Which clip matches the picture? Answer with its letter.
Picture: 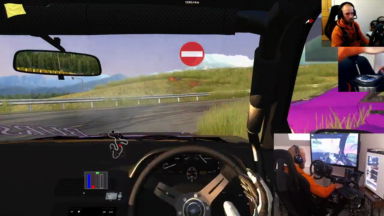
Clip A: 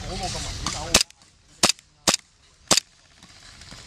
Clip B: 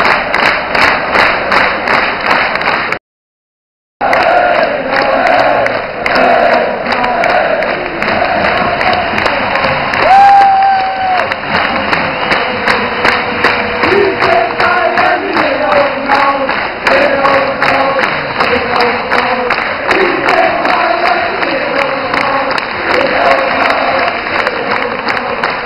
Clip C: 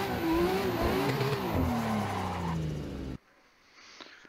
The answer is C